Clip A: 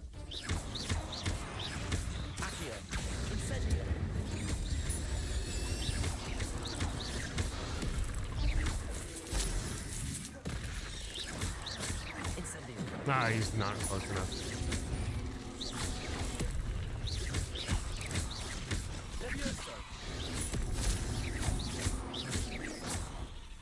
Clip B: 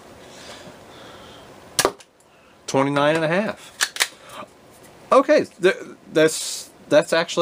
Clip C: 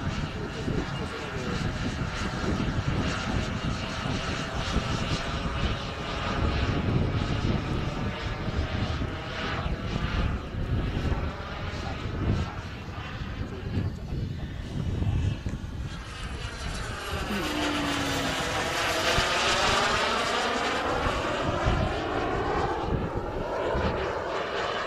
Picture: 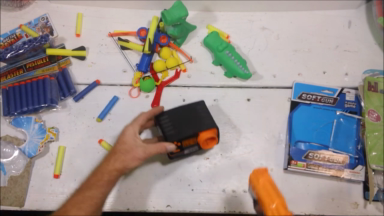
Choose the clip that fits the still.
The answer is B